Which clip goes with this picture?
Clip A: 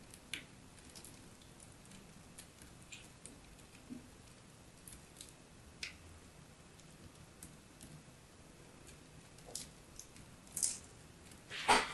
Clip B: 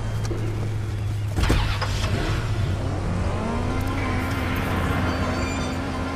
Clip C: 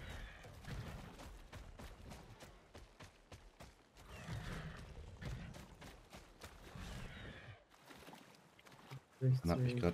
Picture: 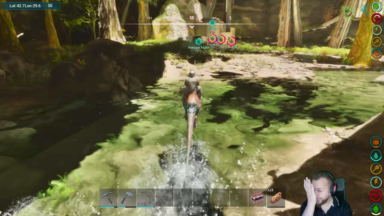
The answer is C